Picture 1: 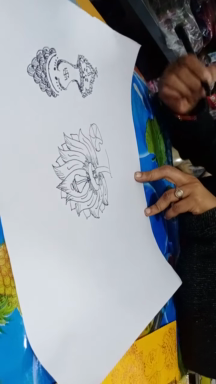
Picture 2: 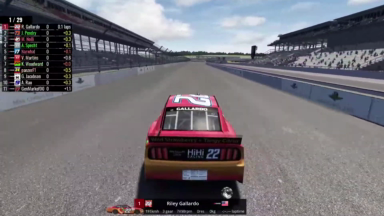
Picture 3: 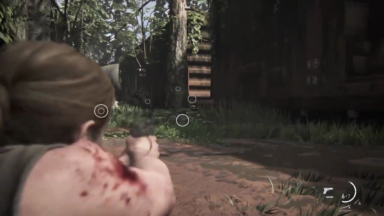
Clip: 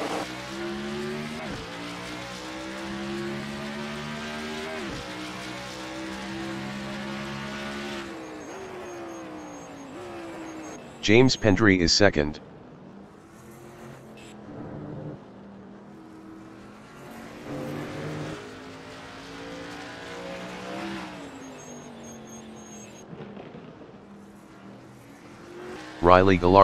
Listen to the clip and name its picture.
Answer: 2